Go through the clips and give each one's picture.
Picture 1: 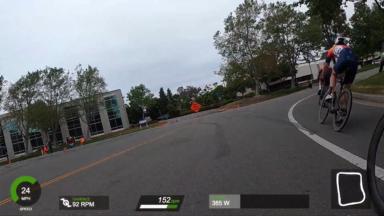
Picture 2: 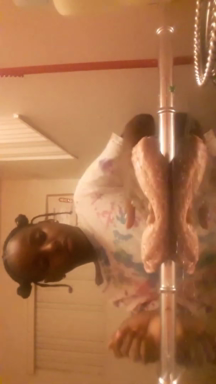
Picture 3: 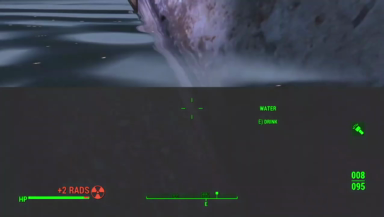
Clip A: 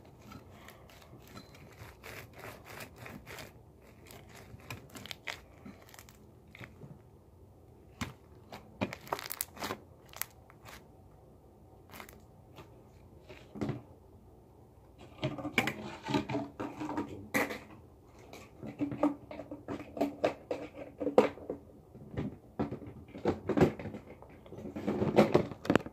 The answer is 2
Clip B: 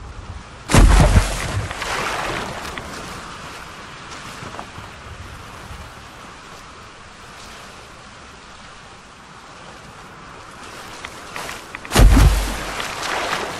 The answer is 3